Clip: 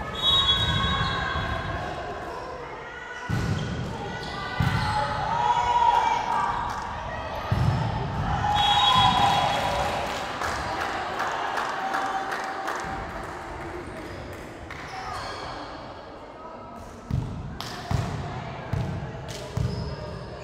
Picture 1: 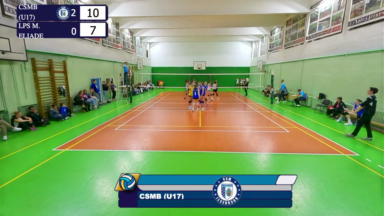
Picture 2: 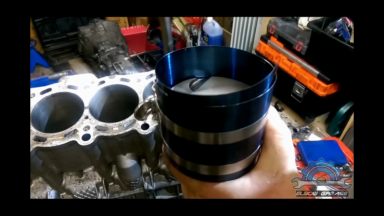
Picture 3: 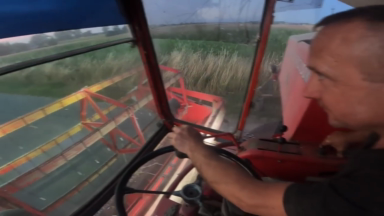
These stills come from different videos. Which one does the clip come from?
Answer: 1